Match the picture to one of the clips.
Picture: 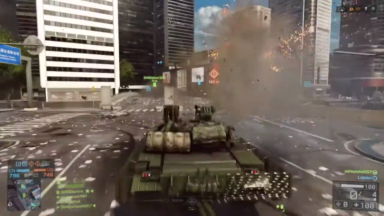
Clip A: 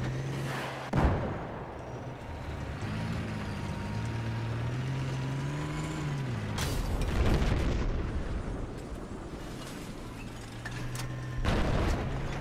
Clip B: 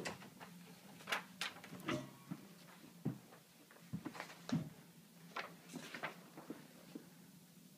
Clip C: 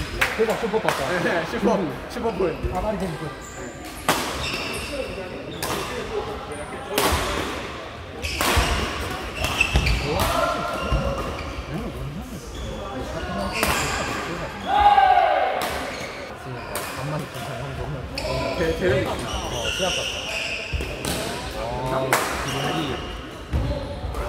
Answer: A